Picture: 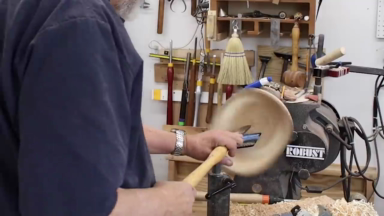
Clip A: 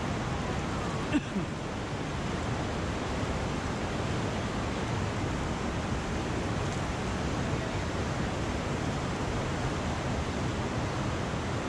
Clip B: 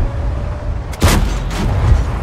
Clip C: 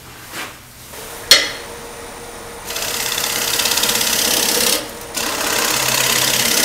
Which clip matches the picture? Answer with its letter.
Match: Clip C